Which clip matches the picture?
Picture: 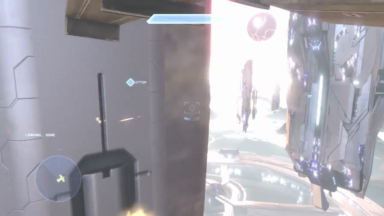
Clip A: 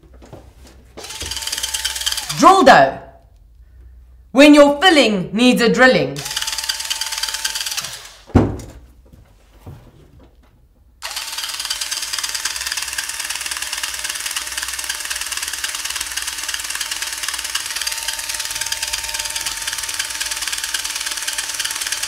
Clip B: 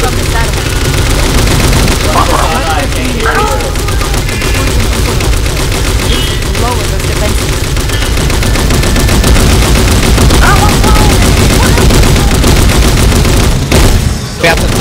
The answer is B